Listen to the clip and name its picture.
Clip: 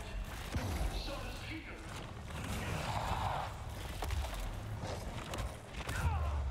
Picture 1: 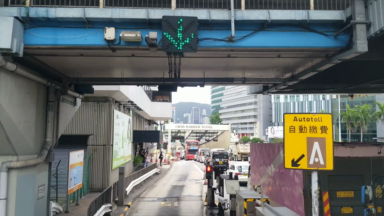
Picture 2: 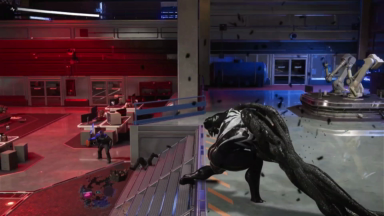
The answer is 2